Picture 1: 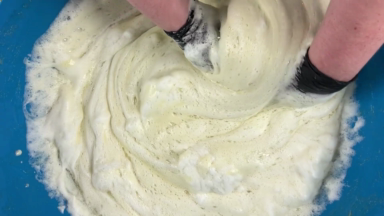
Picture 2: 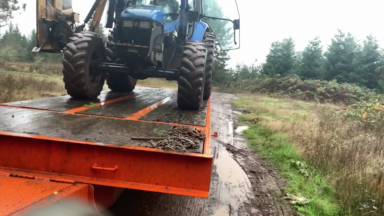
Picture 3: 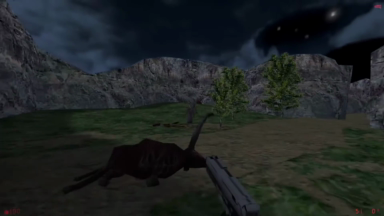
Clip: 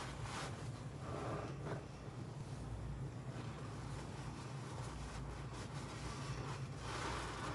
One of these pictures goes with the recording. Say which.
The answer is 1